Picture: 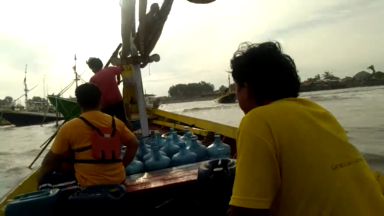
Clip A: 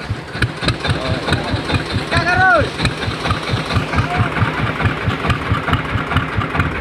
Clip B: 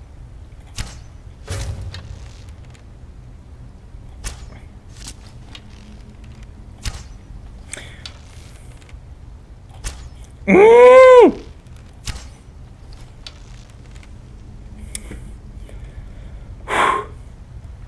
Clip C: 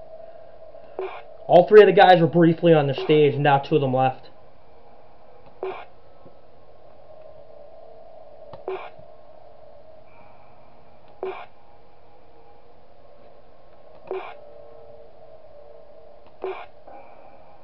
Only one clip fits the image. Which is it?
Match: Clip A